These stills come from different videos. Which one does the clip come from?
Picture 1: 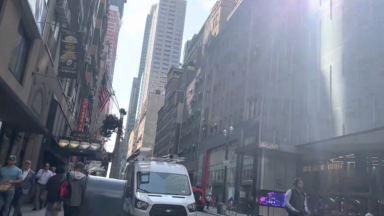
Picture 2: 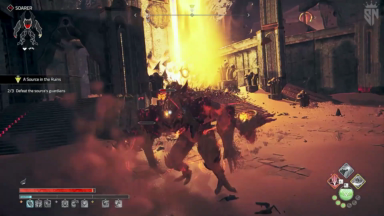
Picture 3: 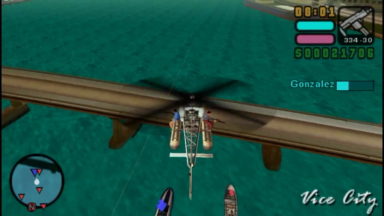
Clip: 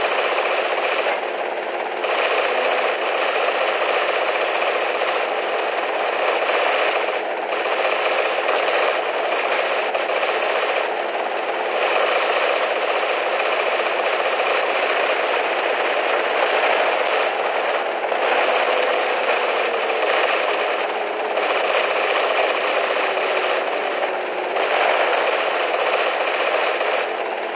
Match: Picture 3